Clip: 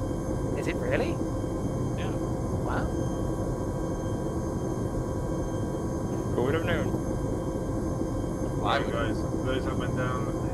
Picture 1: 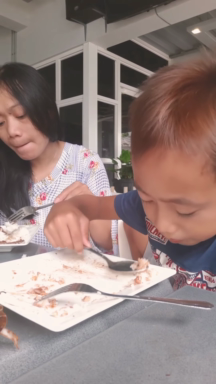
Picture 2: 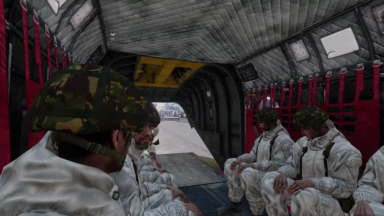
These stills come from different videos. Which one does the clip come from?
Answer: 2